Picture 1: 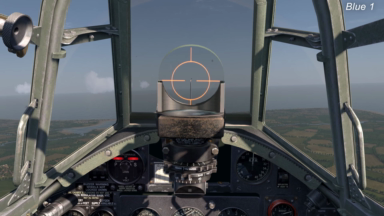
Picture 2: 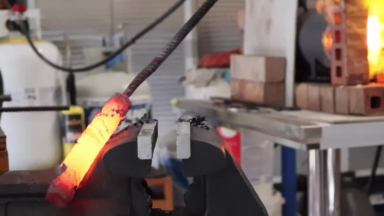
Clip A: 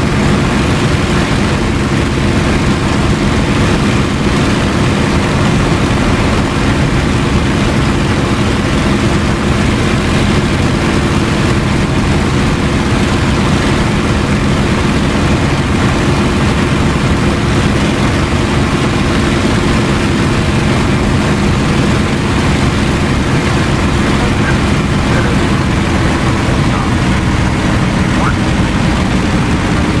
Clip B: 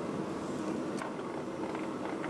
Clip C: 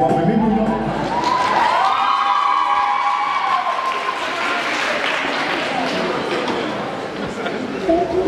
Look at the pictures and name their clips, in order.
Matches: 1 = A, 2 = B